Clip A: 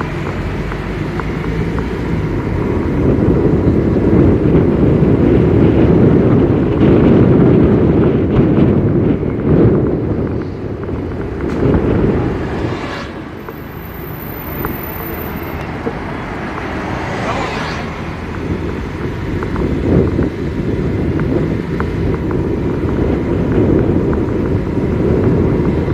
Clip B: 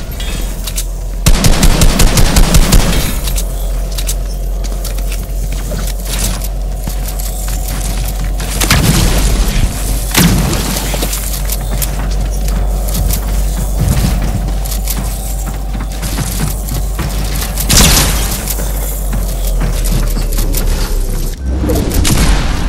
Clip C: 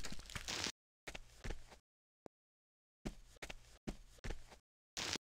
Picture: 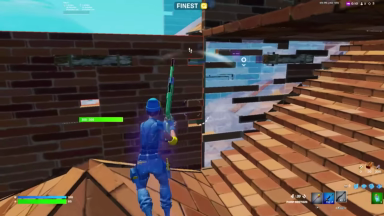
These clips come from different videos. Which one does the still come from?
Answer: B